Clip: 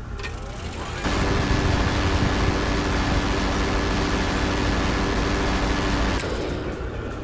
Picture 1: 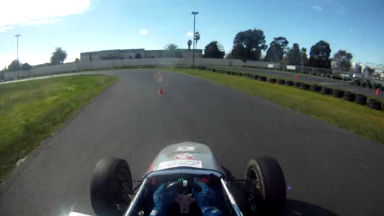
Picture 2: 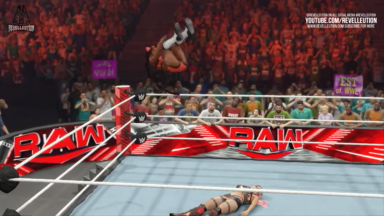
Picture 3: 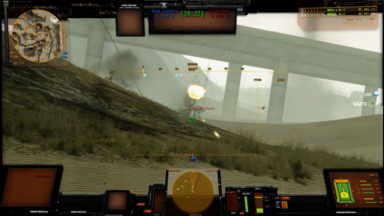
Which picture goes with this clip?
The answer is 3